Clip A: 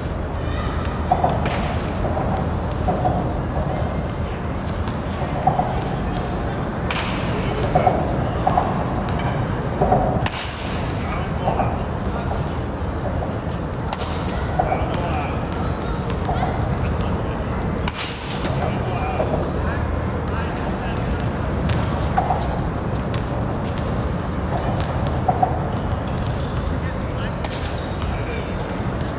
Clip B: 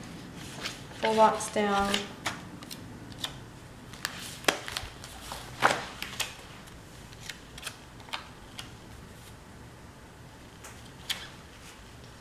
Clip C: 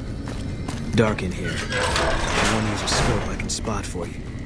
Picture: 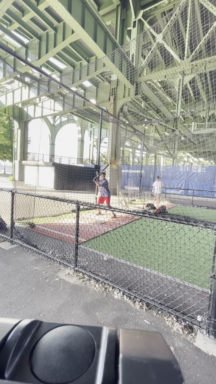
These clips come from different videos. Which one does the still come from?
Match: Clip A